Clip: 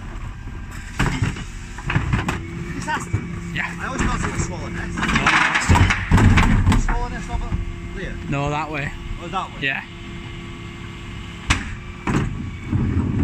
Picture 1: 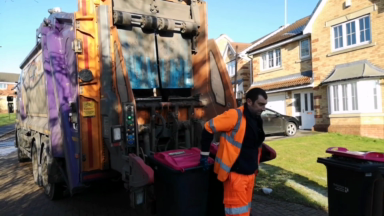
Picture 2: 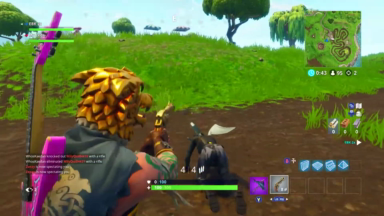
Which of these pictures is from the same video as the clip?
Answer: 1